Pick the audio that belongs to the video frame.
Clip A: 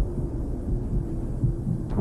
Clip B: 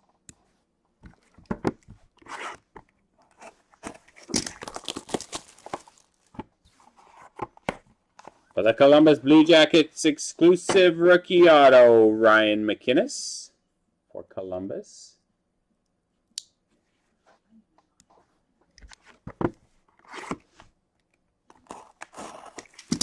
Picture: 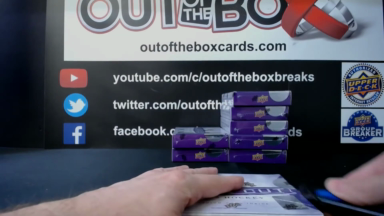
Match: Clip B